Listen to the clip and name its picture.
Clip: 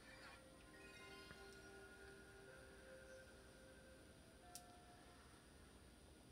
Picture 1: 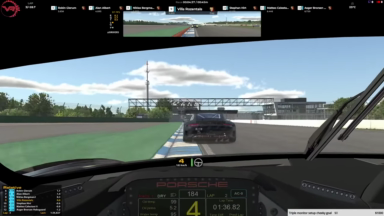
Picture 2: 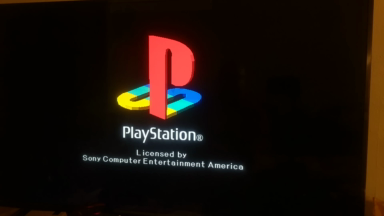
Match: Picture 2